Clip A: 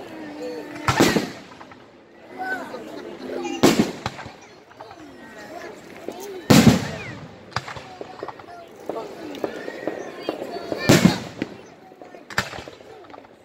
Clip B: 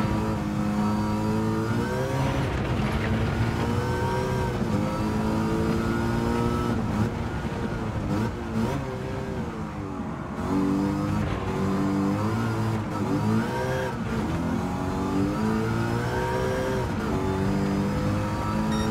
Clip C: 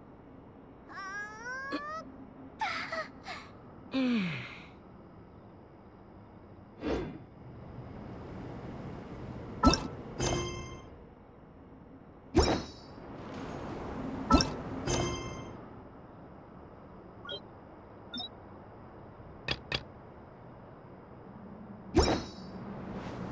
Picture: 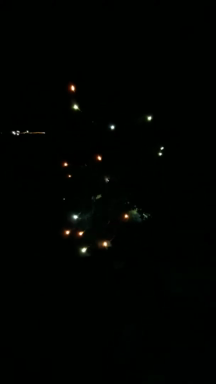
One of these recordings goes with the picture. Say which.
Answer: A